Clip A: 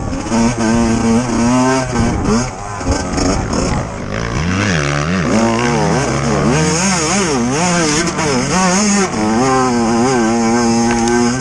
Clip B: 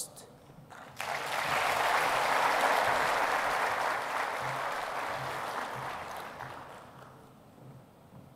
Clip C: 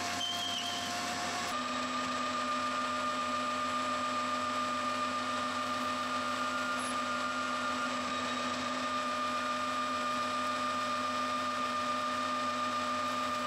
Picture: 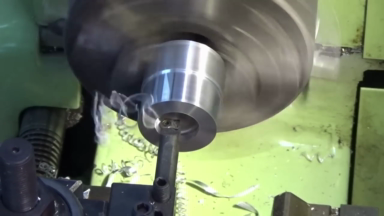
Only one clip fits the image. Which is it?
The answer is C